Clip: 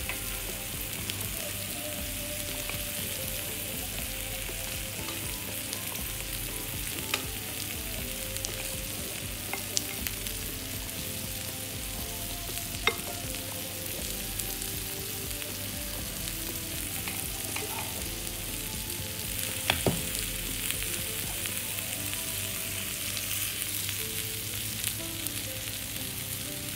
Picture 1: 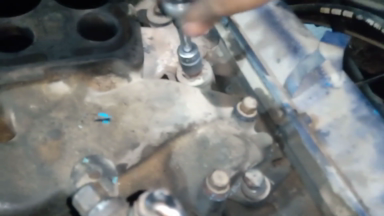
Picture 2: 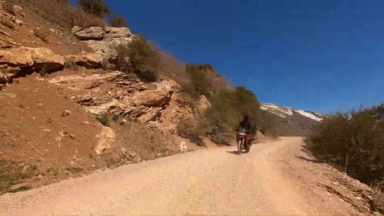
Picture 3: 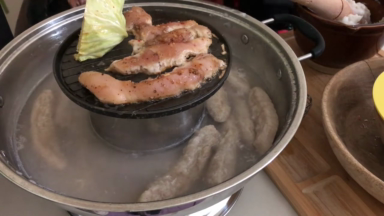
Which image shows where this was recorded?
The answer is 3